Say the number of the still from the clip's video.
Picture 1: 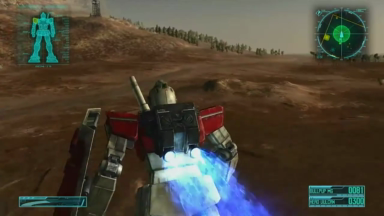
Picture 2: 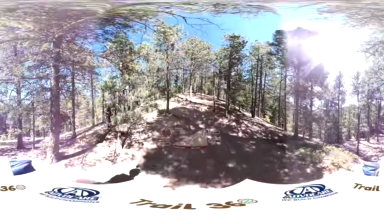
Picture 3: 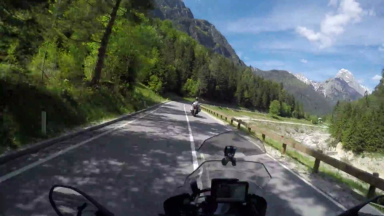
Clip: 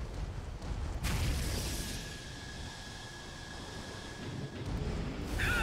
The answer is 1